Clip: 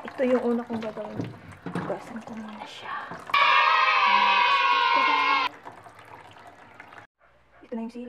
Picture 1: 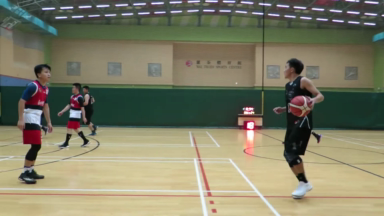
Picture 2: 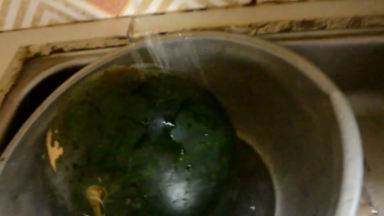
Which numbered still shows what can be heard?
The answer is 2